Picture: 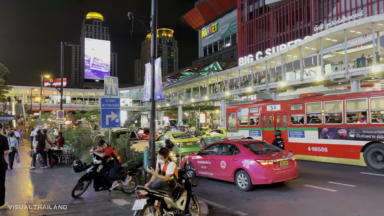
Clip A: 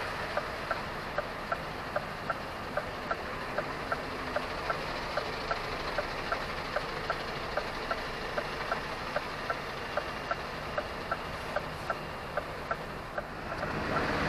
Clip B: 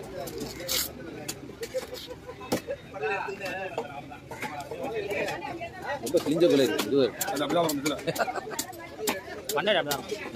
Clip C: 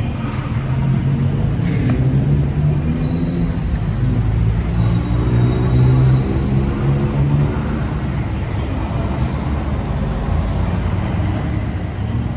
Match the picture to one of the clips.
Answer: C